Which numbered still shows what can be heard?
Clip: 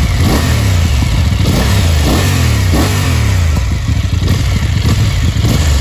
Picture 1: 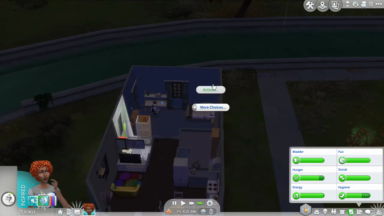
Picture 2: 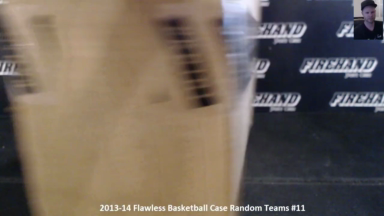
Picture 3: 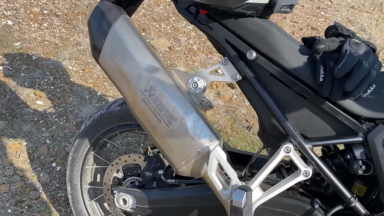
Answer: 3